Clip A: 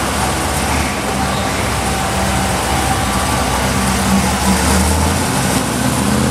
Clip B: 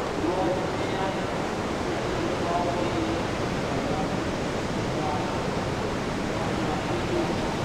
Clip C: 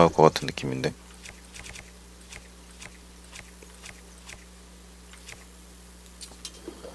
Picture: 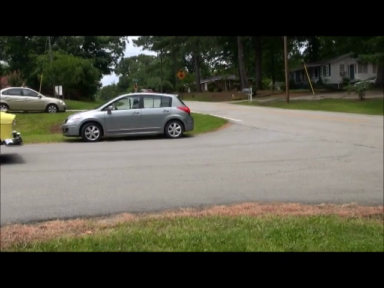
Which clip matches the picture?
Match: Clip A